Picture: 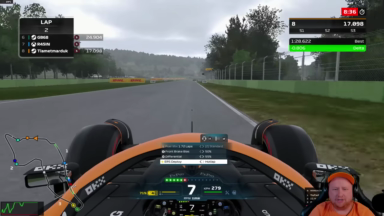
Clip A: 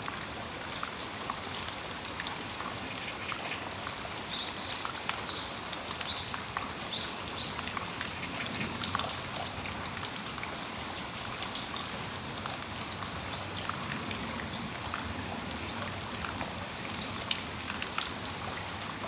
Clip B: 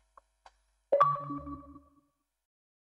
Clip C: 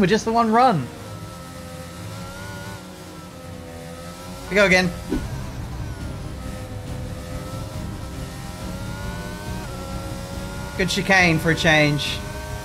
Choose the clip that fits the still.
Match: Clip C